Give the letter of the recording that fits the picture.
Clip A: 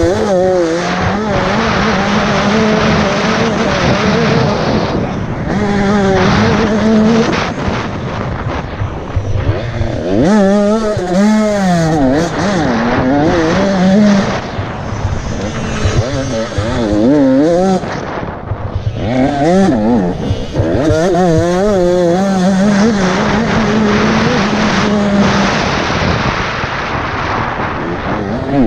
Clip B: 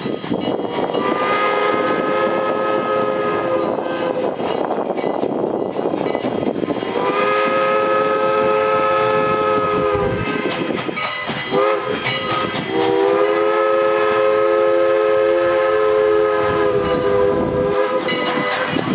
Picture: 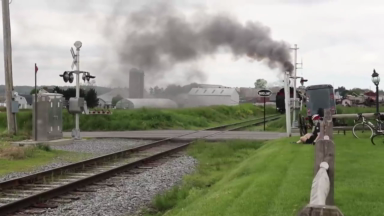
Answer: B